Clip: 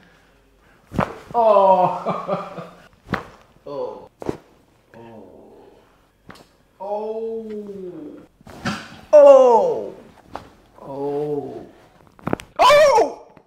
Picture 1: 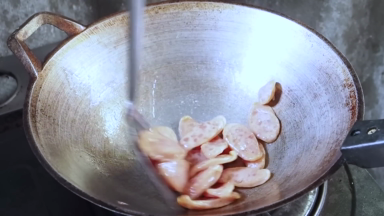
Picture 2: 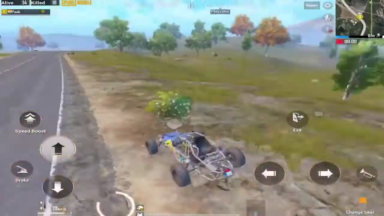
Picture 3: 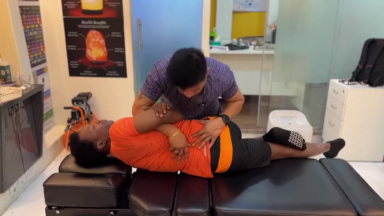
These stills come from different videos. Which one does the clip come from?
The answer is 3